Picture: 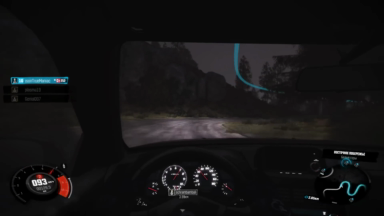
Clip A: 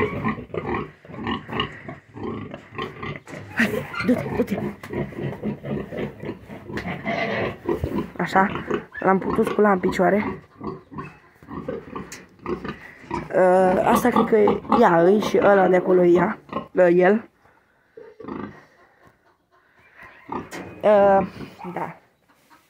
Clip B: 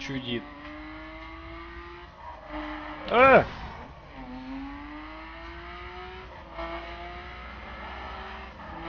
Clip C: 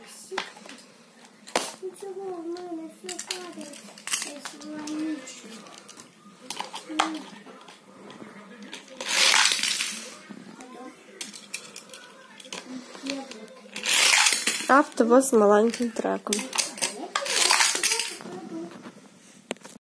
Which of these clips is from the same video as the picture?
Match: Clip B